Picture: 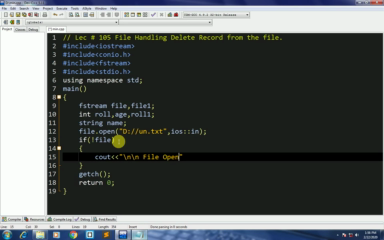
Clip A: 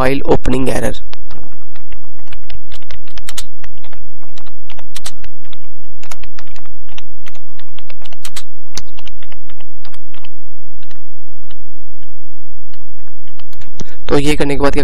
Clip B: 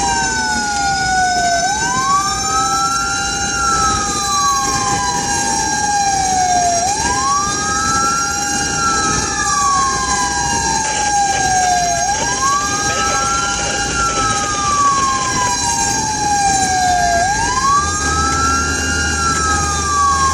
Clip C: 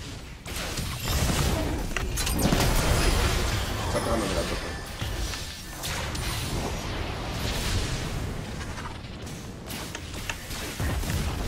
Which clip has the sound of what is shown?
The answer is A